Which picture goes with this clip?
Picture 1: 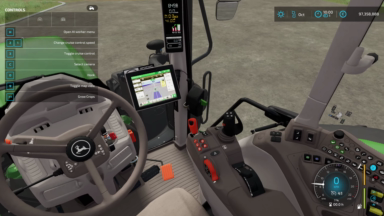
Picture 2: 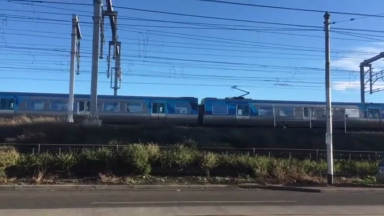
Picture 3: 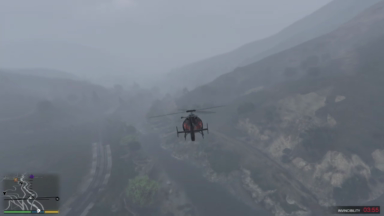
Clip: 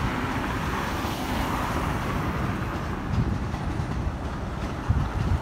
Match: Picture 2